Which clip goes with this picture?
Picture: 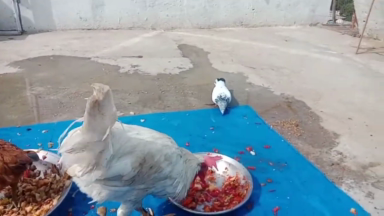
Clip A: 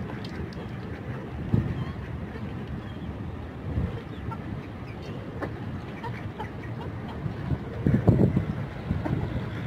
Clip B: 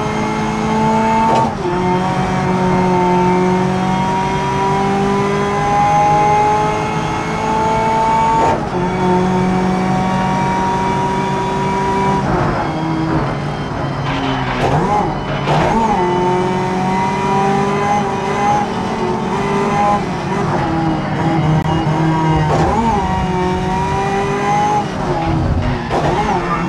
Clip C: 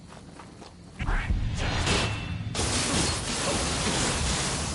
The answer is A